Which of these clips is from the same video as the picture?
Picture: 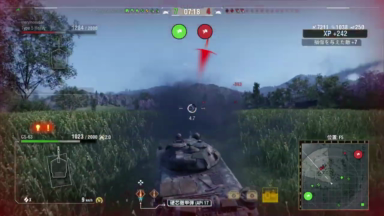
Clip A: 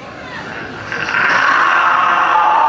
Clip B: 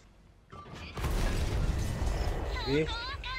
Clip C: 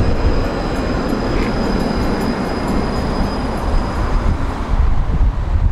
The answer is B